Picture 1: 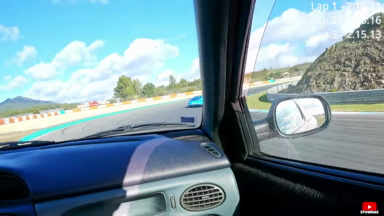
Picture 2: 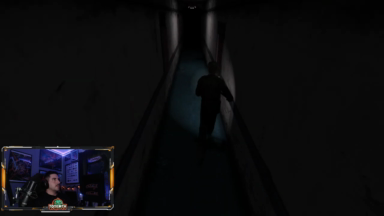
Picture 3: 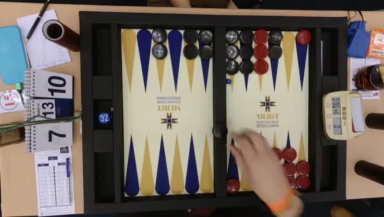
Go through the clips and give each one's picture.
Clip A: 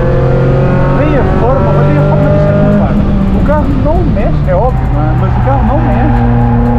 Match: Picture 1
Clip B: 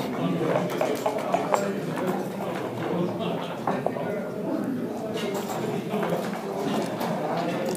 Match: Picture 3